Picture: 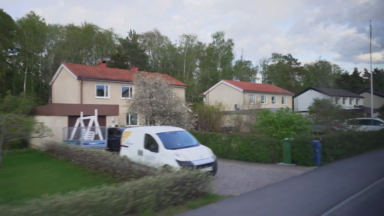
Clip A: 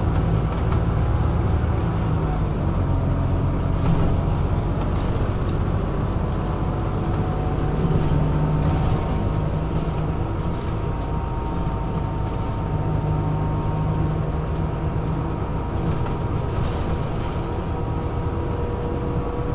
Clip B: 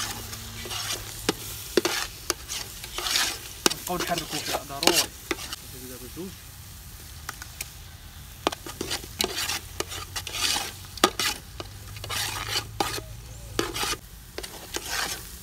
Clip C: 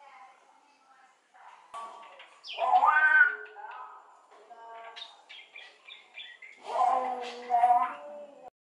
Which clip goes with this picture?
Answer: A